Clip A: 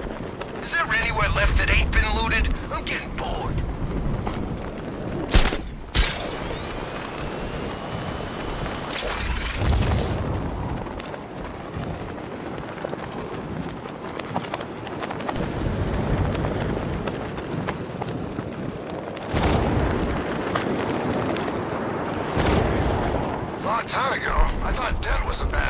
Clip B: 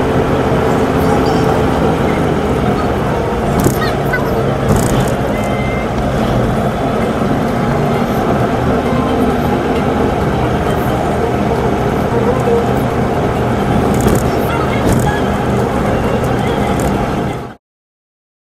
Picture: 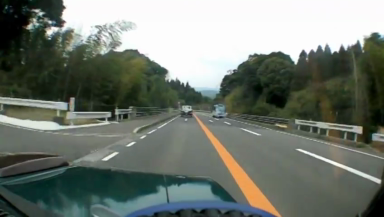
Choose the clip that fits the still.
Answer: B